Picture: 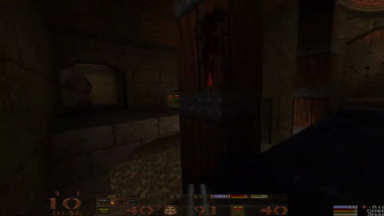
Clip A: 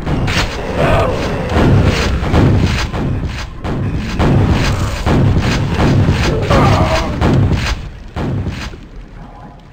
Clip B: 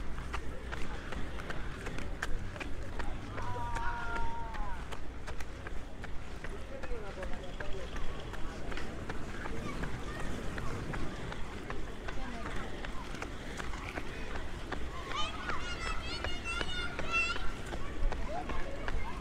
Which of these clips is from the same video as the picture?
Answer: A